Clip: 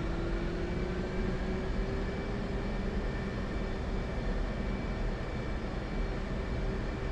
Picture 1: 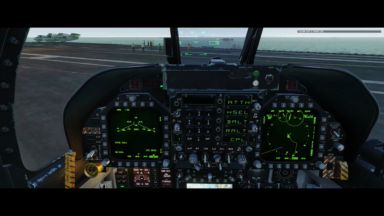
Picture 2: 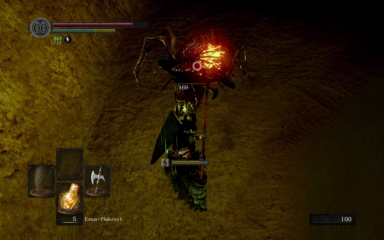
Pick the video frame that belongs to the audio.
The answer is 1